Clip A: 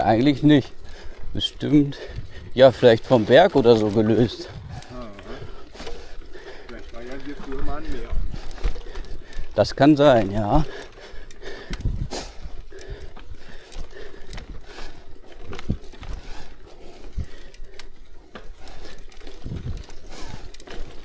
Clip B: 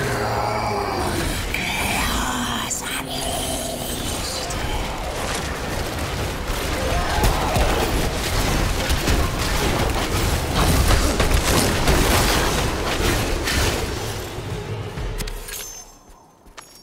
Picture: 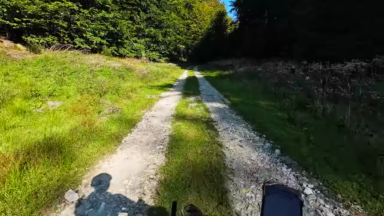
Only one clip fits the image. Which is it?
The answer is A